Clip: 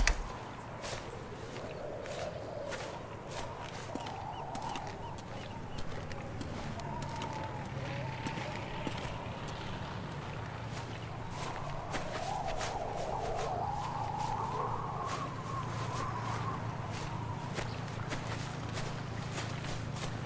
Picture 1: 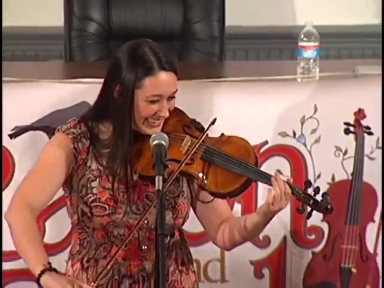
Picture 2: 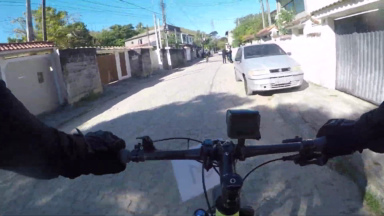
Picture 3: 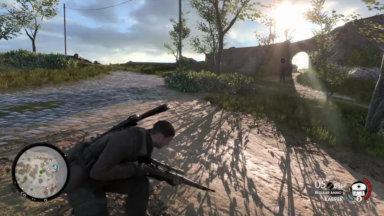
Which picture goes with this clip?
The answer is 3